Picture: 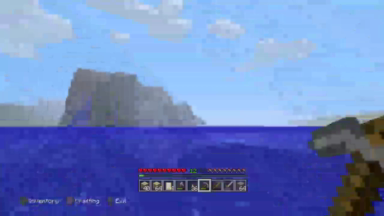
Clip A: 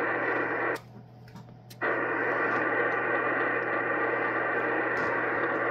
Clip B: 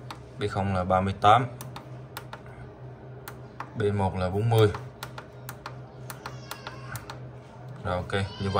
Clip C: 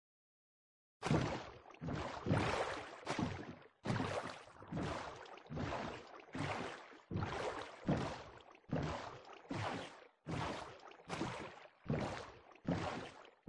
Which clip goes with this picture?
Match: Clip C